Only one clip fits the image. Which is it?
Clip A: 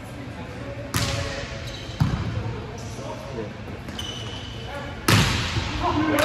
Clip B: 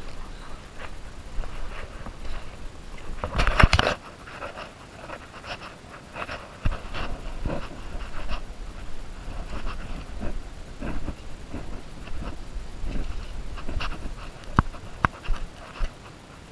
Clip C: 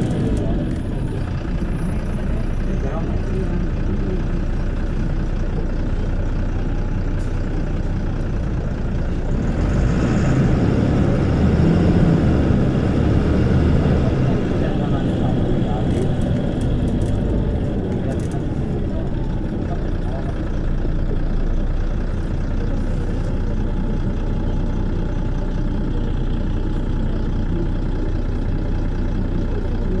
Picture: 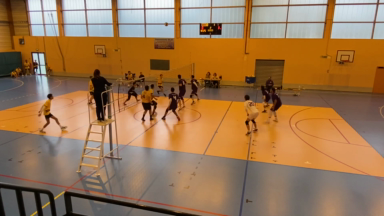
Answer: A